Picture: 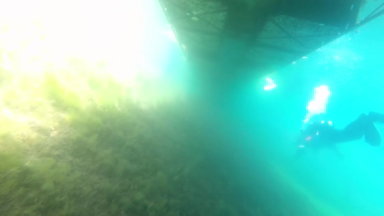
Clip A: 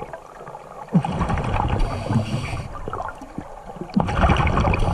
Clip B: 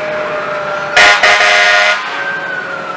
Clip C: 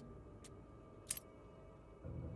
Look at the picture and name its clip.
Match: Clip A